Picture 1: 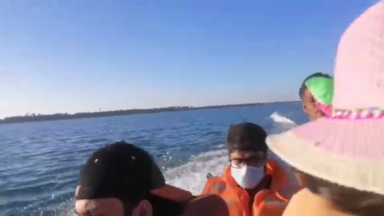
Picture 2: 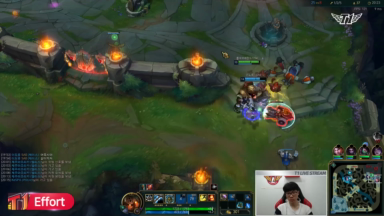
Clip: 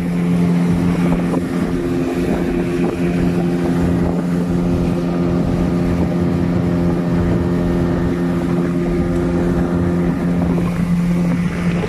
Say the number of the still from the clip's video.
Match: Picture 1